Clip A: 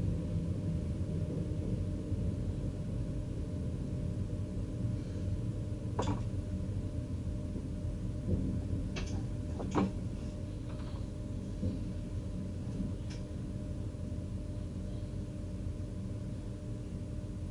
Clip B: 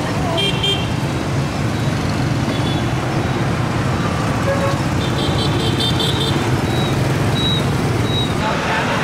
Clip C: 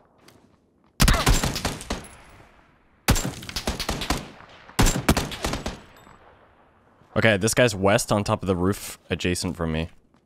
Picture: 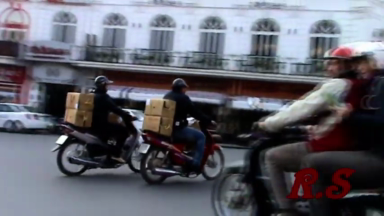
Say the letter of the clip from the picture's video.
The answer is B